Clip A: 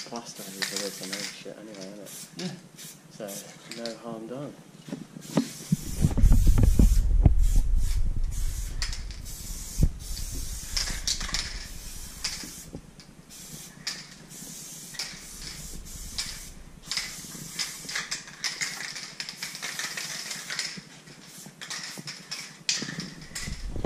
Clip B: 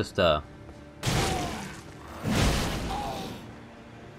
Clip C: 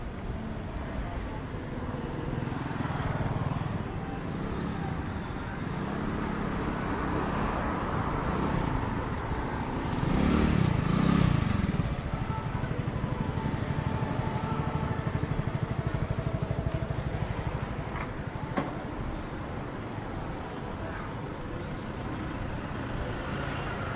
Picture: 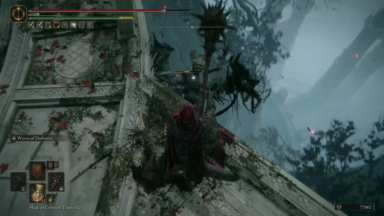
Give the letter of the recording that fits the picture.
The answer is B